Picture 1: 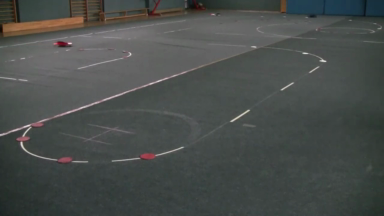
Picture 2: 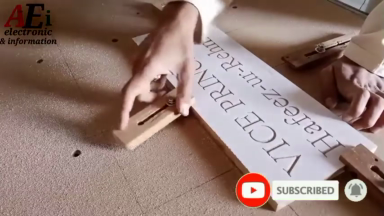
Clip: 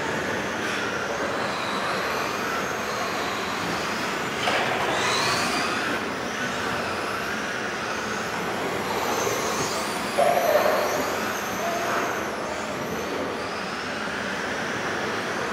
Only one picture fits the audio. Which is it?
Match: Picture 1